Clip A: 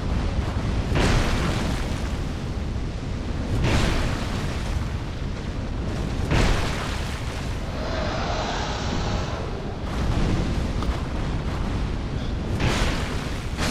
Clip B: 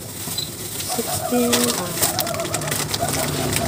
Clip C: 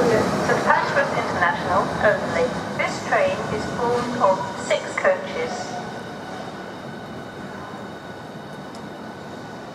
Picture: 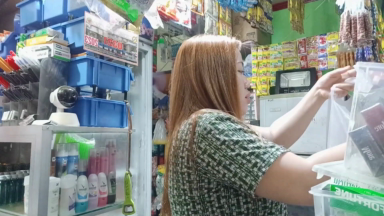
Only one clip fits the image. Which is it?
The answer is B